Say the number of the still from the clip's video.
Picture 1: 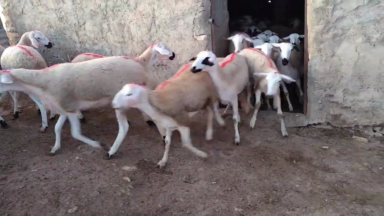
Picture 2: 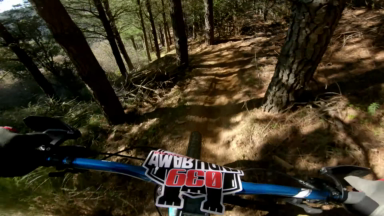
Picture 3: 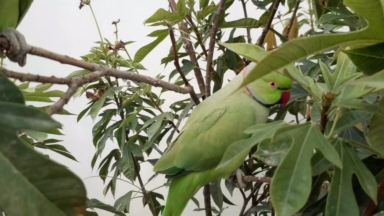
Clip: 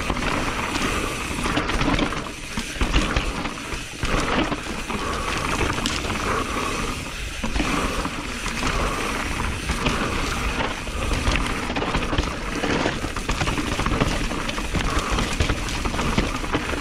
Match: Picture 2